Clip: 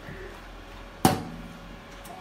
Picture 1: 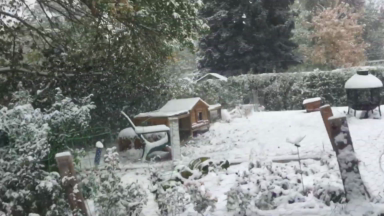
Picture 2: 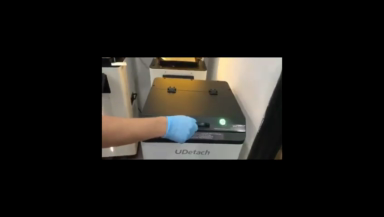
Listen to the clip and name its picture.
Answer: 2